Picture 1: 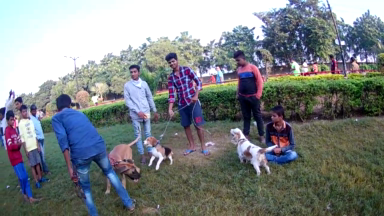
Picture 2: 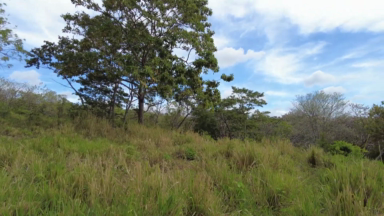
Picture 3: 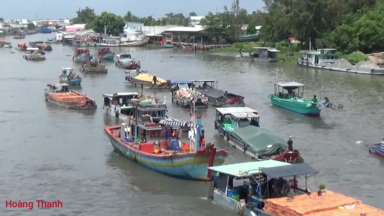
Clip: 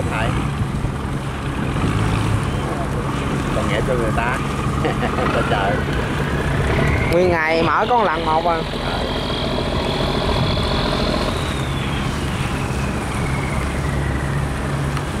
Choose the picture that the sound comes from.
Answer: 3